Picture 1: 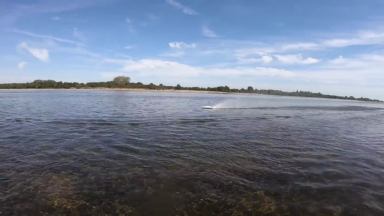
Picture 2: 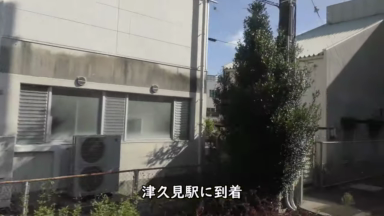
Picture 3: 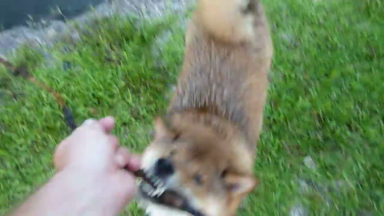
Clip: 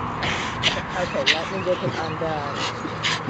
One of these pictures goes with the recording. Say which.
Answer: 3